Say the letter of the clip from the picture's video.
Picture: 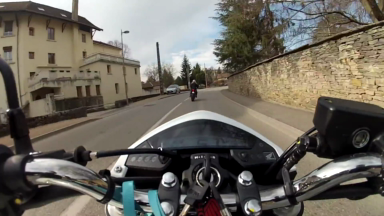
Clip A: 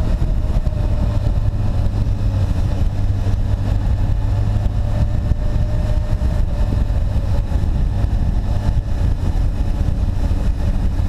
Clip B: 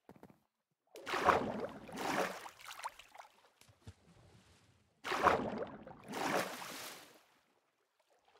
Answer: A